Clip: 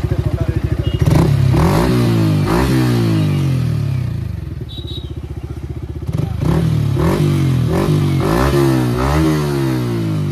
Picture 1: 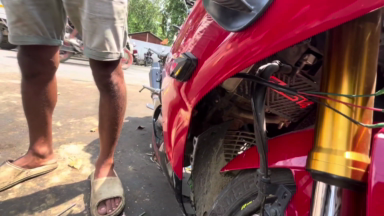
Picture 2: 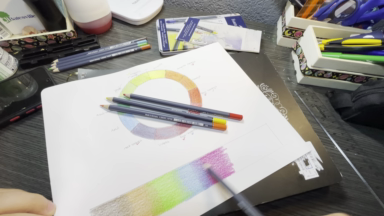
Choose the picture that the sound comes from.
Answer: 1